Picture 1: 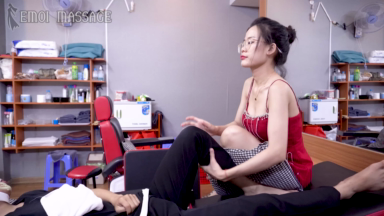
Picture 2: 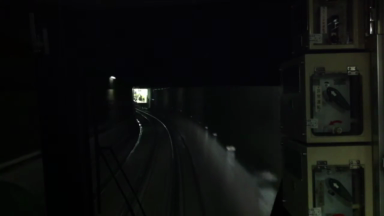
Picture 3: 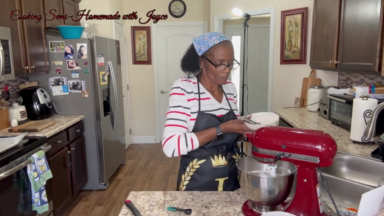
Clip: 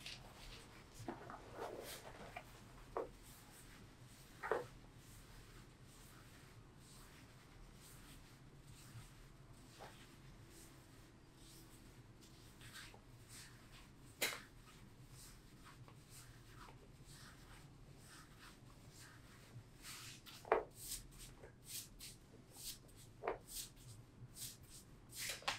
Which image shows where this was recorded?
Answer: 1